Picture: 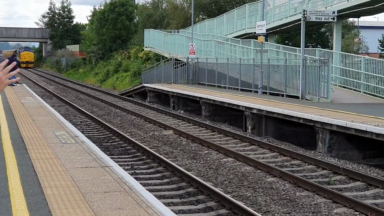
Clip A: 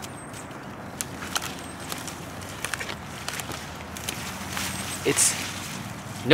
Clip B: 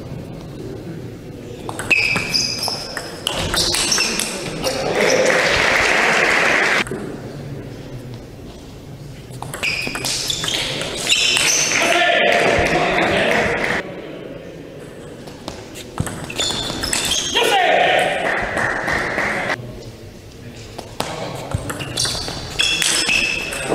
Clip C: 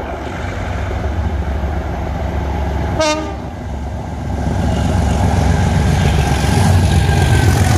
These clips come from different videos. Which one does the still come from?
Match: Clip C